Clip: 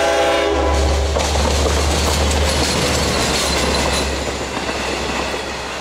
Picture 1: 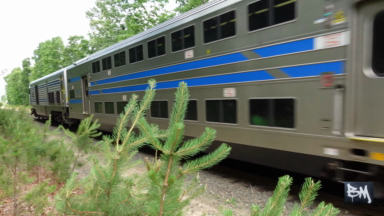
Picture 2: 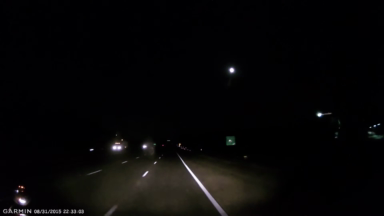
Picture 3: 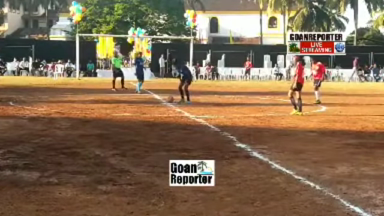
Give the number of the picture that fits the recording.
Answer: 1